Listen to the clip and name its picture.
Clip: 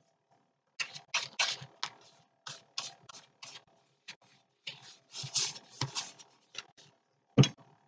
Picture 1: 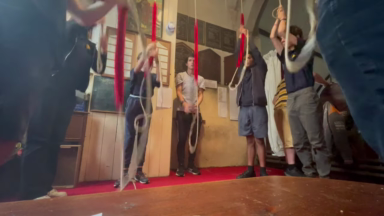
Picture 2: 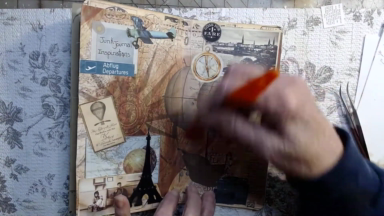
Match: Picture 2